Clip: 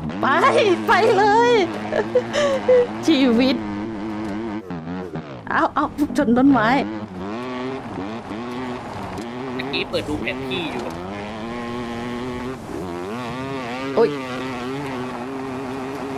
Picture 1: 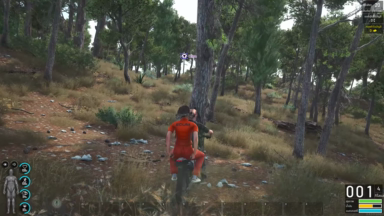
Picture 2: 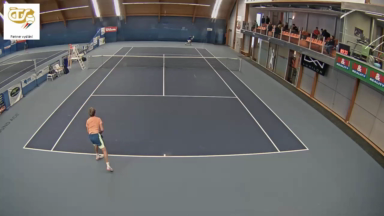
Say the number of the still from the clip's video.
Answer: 1